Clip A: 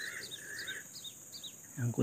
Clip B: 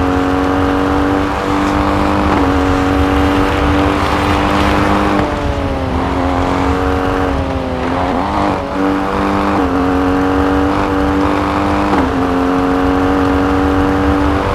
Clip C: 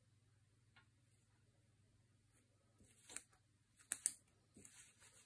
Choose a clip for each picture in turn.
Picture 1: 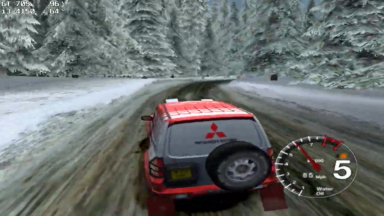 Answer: B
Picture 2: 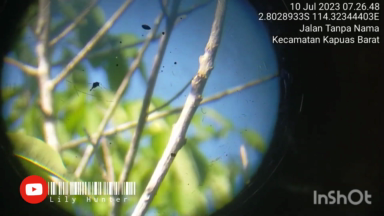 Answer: A